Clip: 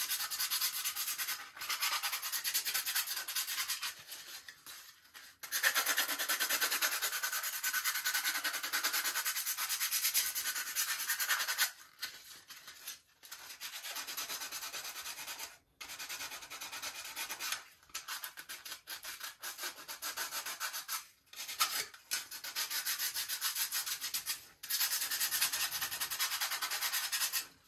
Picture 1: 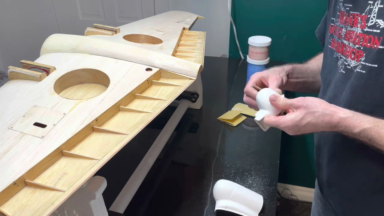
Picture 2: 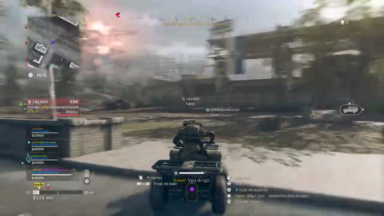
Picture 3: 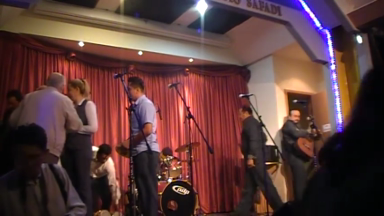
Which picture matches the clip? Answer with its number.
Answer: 1